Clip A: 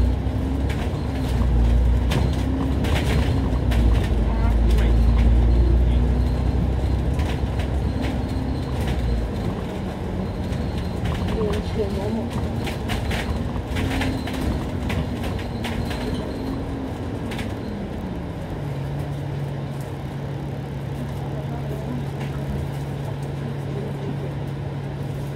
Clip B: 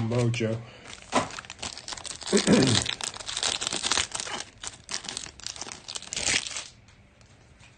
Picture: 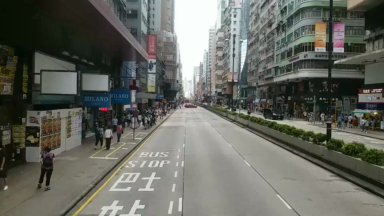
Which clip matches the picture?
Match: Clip A